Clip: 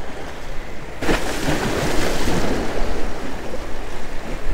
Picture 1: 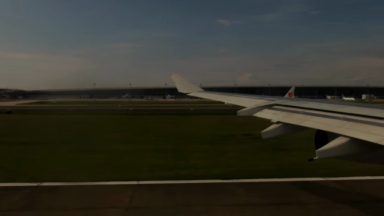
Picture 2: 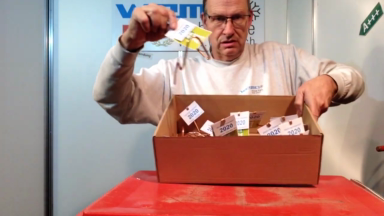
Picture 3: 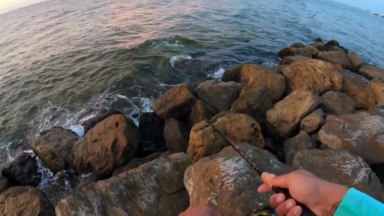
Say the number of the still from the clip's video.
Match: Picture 3